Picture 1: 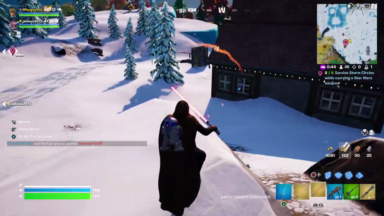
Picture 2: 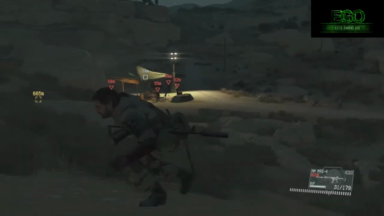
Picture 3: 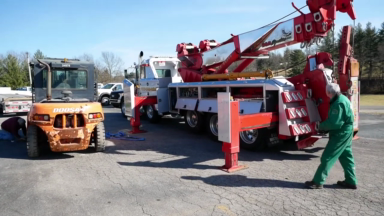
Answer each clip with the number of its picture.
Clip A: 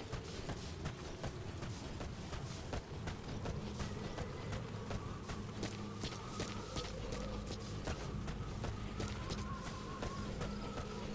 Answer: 2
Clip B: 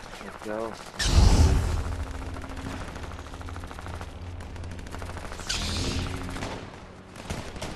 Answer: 1